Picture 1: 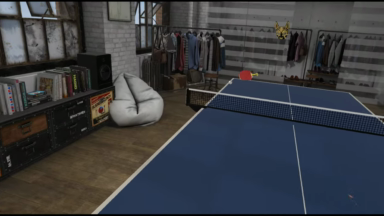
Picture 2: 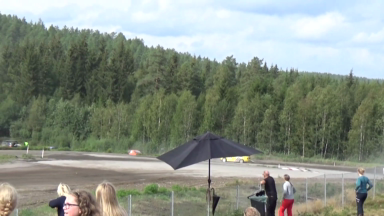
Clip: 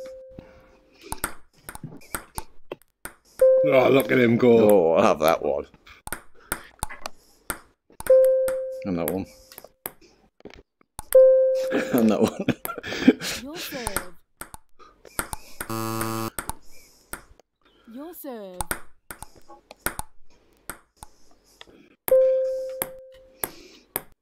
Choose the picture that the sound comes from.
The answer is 1